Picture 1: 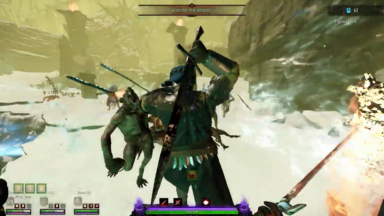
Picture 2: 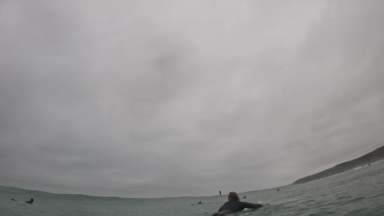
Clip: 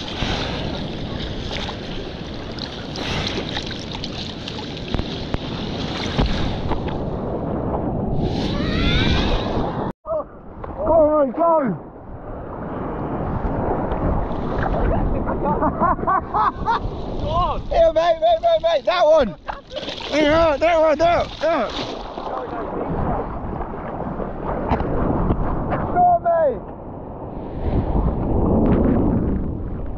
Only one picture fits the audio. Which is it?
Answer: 2